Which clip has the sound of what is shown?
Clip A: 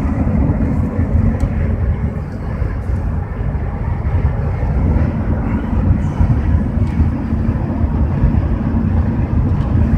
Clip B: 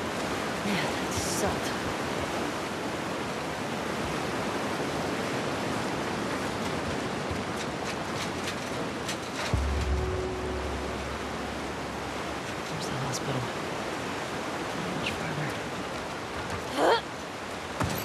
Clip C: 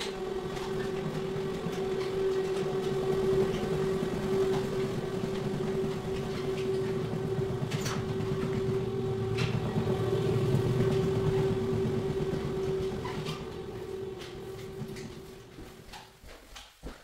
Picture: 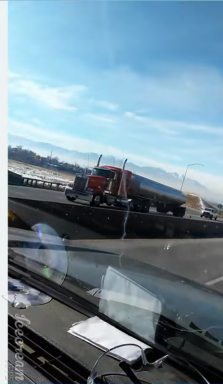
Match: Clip A